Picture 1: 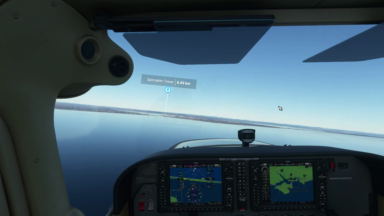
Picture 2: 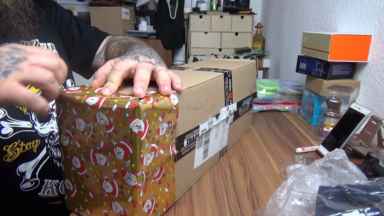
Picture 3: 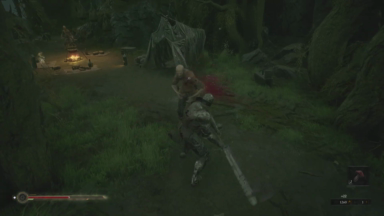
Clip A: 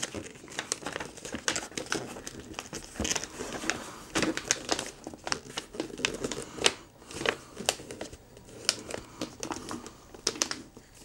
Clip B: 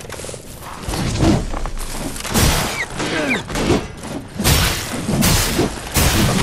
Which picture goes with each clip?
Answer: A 2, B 3